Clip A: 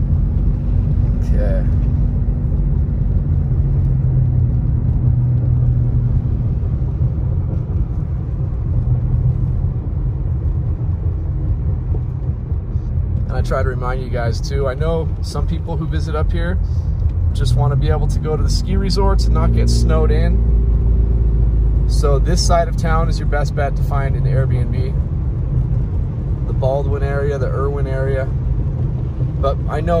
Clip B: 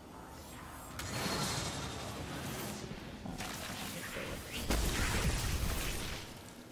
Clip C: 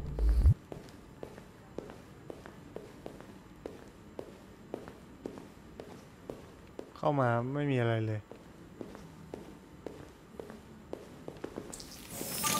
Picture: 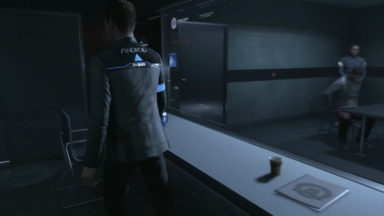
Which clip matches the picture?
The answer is C